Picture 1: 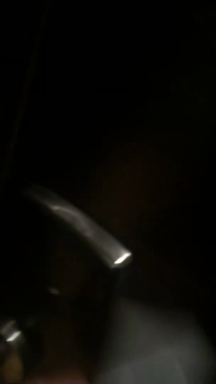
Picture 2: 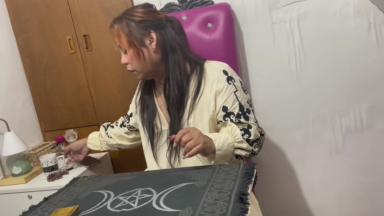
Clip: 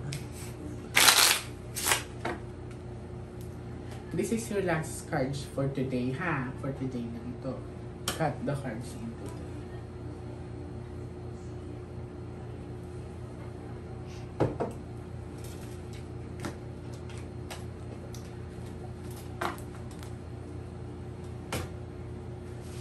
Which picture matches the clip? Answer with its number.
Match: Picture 2